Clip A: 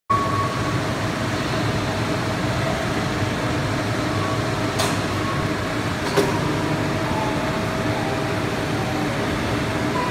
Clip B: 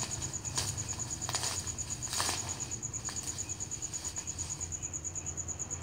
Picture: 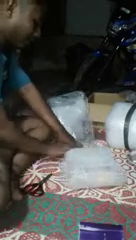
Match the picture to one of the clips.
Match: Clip B